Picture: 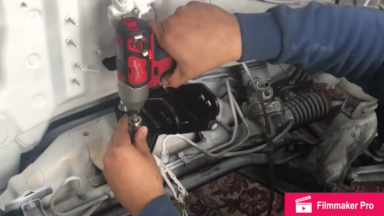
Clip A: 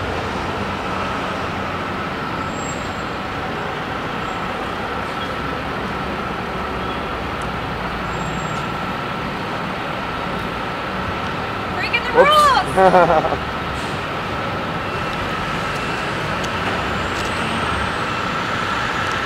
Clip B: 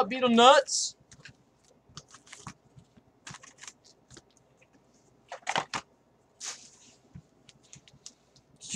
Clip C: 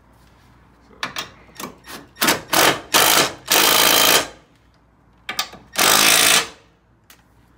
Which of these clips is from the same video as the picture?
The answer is C